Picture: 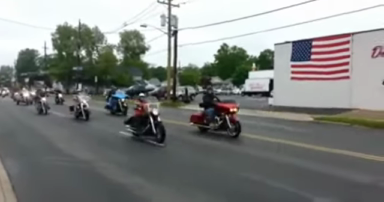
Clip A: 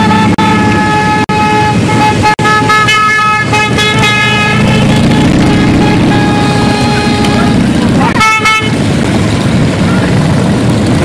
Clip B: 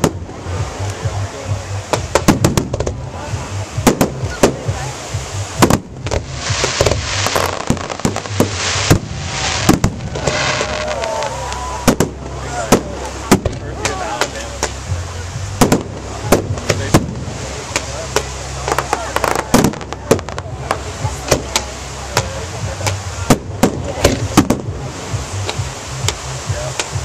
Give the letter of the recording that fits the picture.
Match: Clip A